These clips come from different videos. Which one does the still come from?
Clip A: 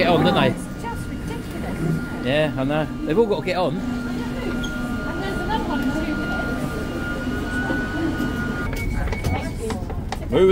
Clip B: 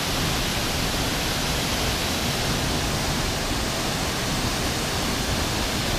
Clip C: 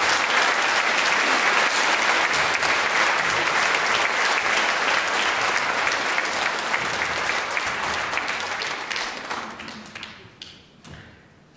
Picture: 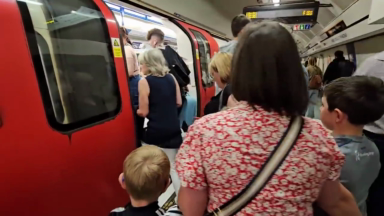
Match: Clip A